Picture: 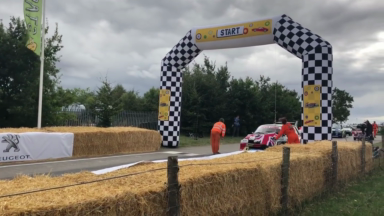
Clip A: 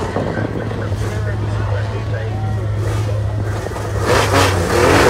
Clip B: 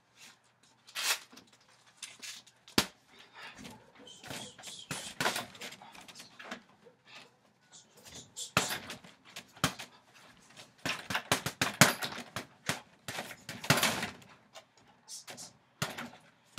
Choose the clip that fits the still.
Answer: A